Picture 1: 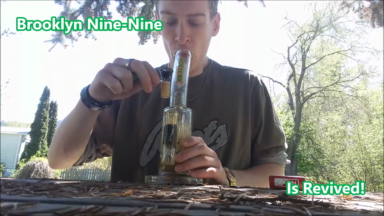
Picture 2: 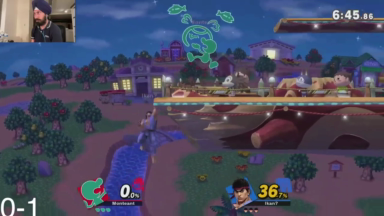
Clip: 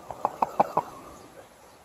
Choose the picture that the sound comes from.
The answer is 1